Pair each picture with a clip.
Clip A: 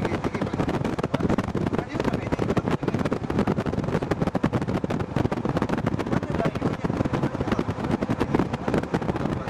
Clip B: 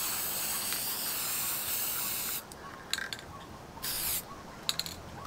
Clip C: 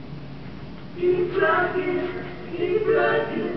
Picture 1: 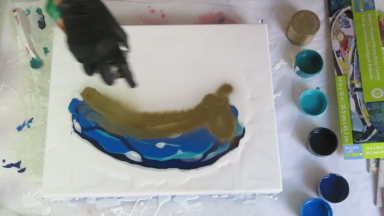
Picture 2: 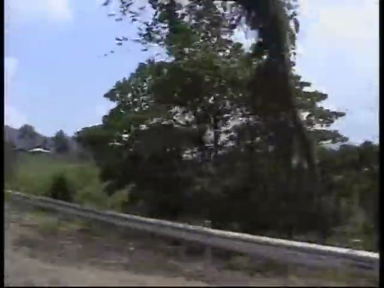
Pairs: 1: B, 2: A